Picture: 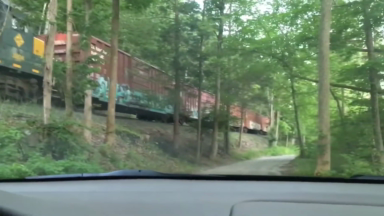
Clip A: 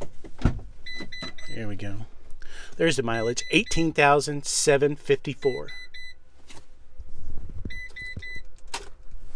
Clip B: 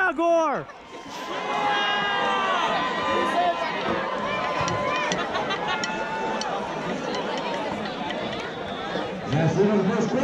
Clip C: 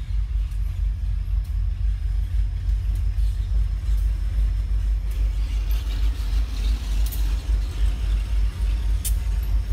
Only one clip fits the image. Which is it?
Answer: C